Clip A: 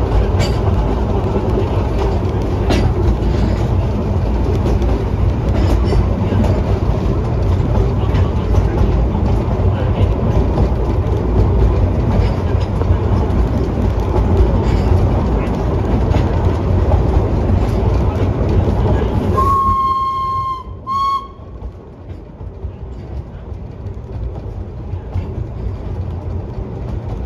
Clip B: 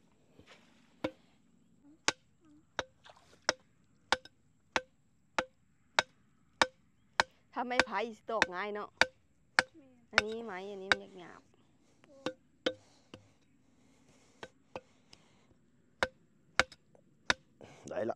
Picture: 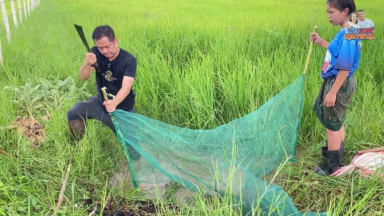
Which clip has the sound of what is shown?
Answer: B